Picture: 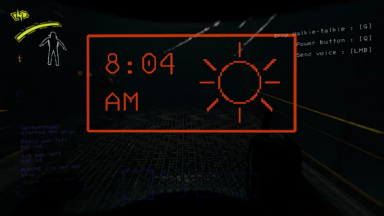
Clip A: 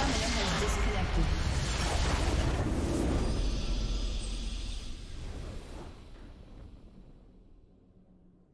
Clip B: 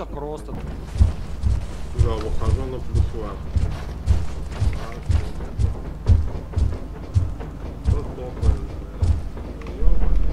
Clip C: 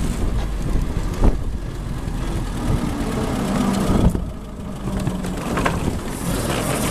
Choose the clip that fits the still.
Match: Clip B